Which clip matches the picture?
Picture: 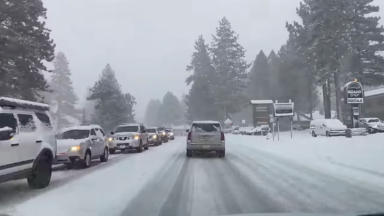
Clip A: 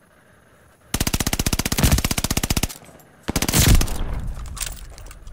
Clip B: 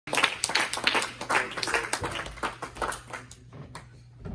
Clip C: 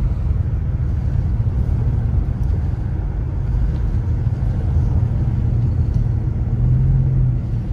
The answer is C